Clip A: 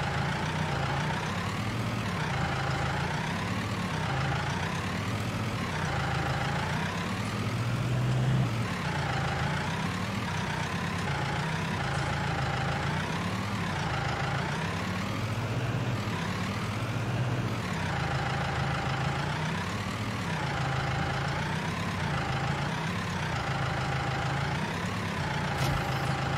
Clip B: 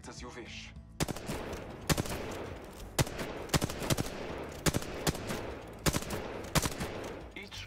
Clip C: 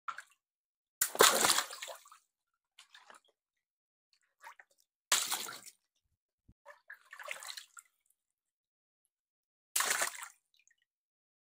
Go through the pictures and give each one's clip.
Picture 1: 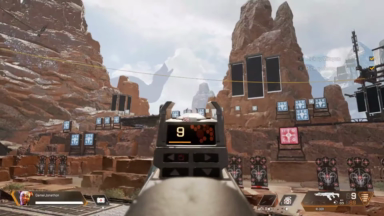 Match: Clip B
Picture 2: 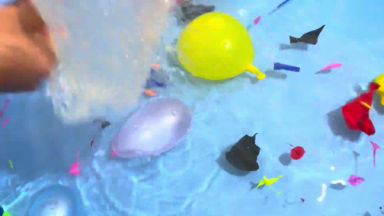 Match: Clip C